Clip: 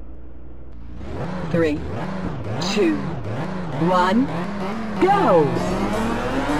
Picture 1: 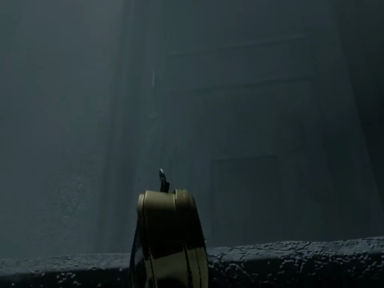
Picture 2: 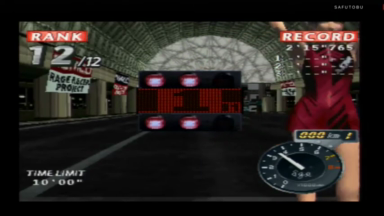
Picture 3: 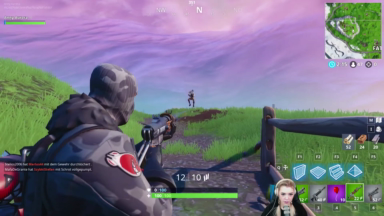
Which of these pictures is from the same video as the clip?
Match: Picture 2